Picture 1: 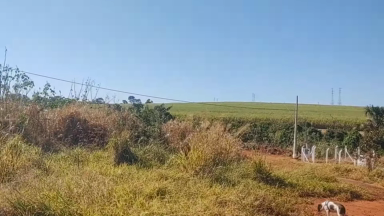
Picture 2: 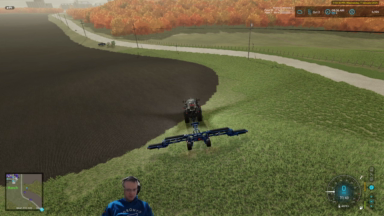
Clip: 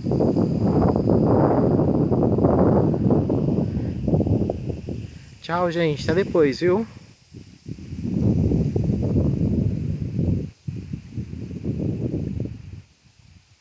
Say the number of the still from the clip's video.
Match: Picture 1